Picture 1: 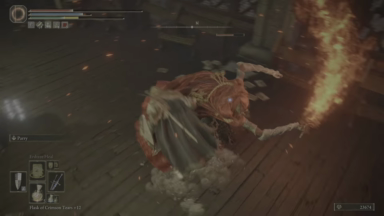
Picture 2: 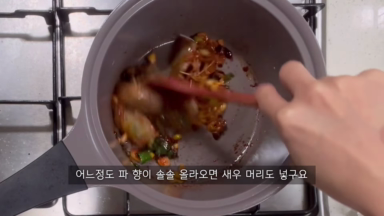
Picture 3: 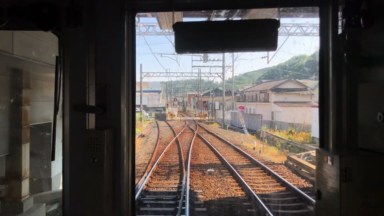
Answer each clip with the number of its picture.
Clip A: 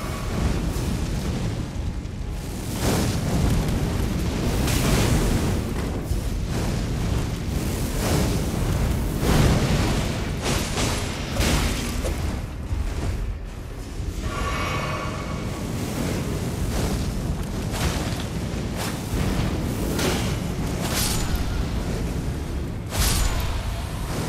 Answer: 1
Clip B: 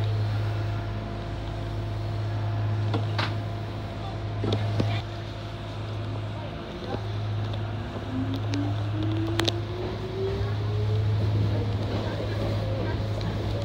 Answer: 3